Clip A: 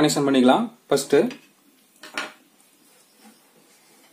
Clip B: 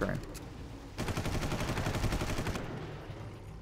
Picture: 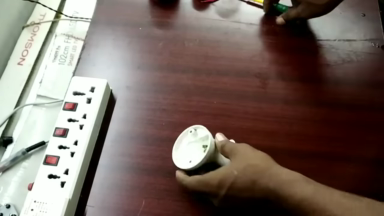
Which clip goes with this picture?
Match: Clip A